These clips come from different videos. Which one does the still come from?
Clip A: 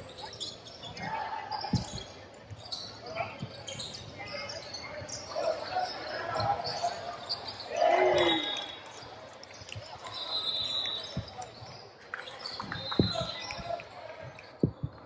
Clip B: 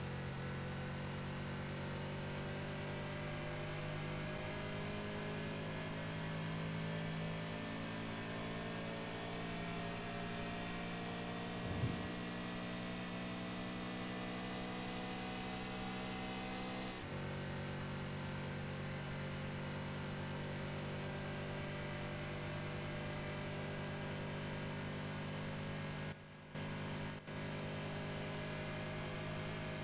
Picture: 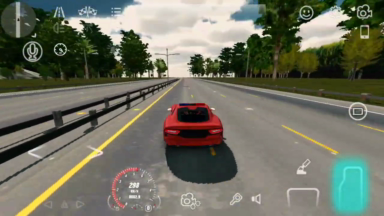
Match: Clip B